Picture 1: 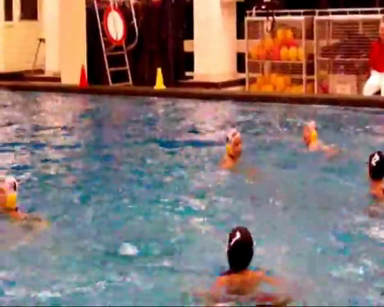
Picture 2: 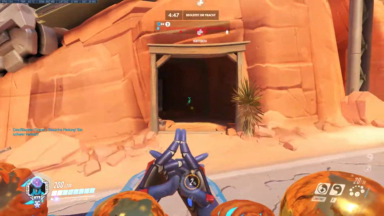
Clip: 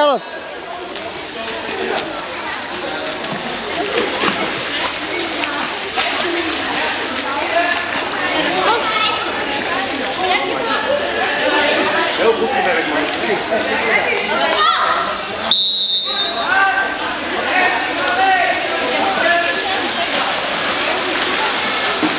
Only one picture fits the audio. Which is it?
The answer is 1